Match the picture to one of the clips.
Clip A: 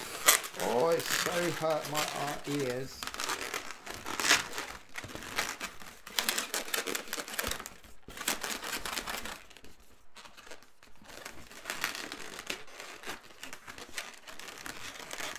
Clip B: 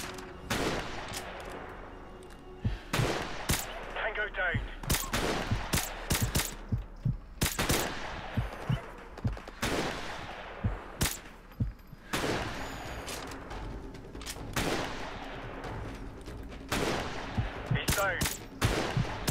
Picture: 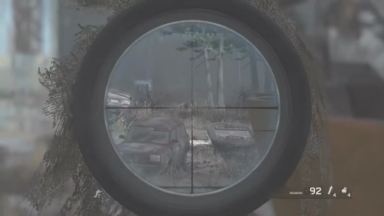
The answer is B